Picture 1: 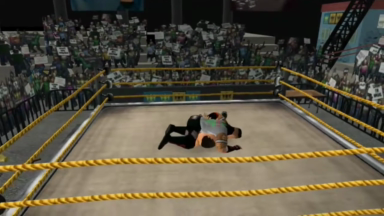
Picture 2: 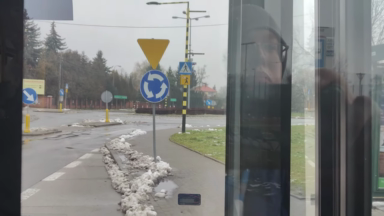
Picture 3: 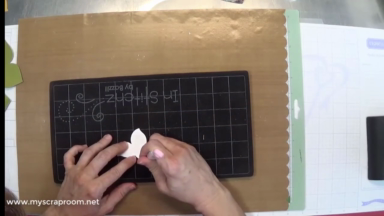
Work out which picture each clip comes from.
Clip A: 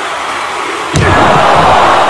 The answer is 1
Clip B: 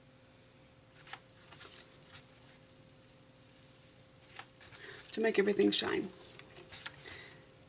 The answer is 3